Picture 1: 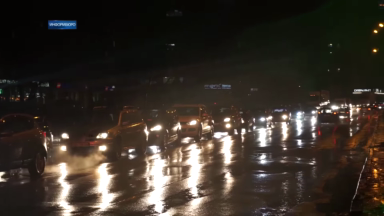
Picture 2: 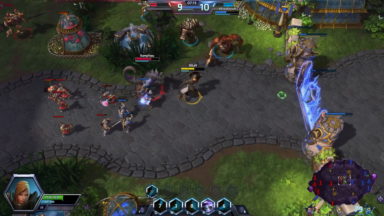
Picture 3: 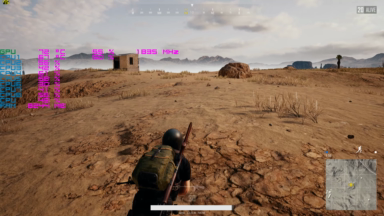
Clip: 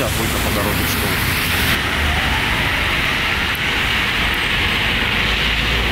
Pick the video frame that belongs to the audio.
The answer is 1